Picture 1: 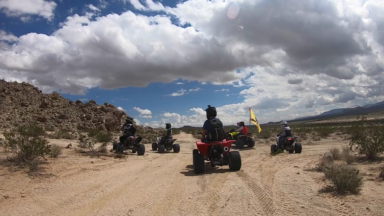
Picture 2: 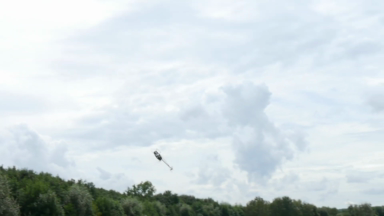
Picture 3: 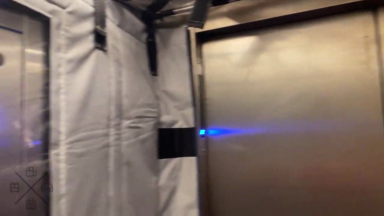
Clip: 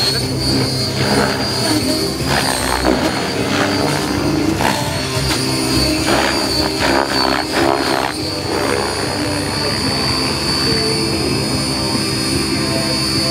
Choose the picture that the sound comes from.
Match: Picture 2